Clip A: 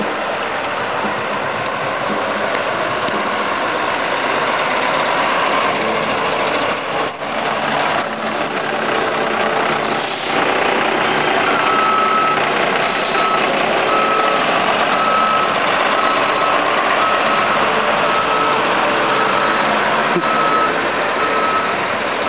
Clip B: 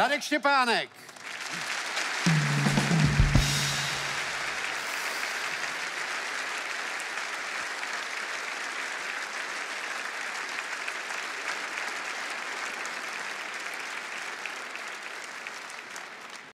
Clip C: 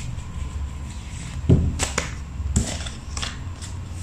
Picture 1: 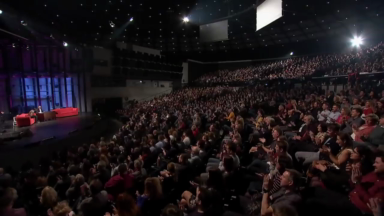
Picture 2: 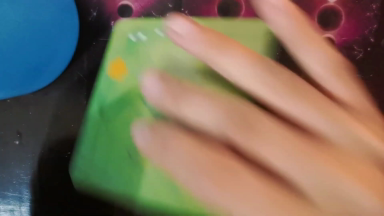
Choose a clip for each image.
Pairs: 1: B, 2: C